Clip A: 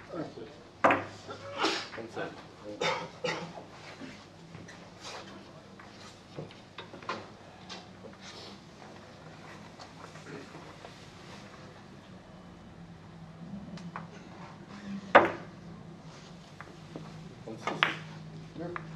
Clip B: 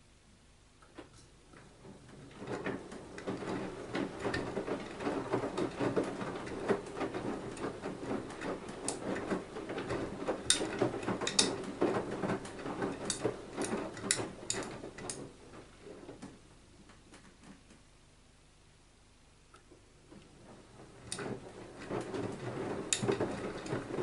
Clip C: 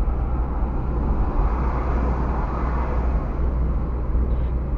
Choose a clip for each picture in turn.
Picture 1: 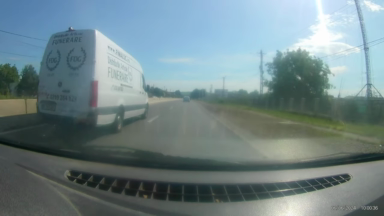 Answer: C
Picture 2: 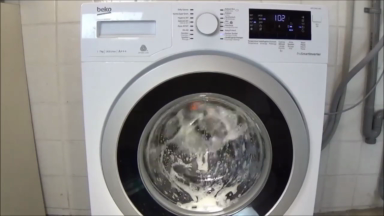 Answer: B